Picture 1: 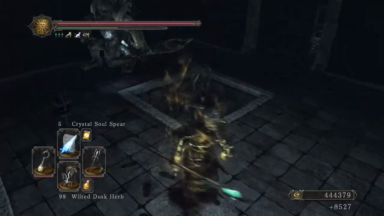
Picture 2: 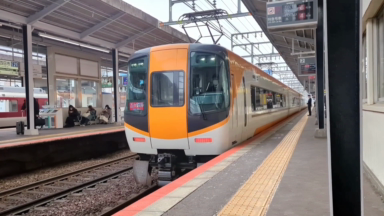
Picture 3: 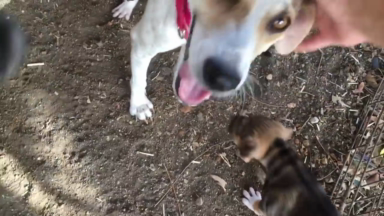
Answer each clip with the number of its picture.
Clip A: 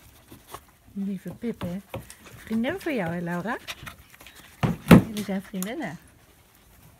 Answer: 3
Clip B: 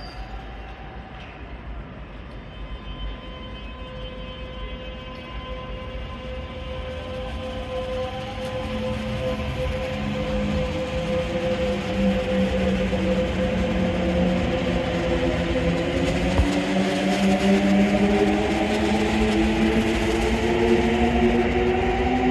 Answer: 2